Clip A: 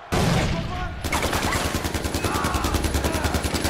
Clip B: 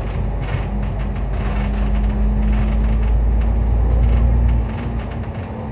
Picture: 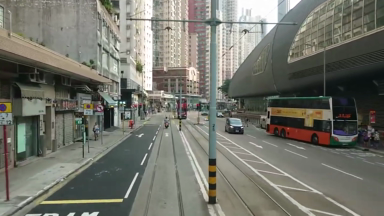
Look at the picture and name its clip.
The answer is B